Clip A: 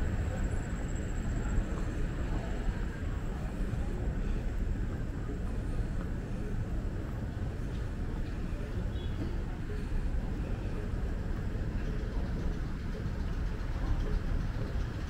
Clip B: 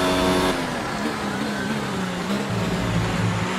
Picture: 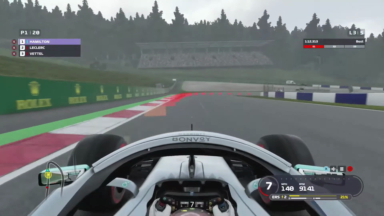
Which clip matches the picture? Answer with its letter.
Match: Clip B